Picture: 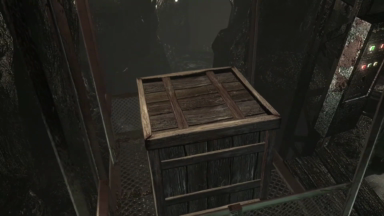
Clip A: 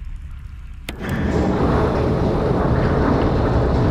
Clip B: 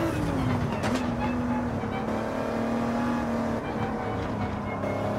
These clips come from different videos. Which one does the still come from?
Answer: A